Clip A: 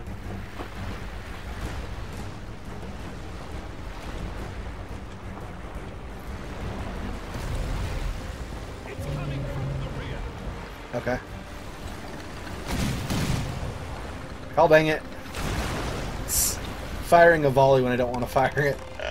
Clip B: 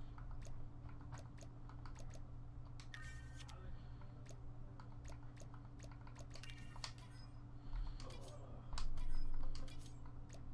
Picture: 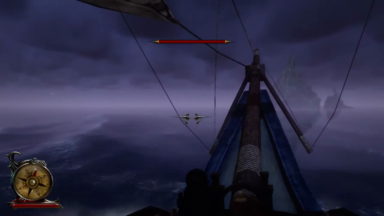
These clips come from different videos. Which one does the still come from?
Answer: A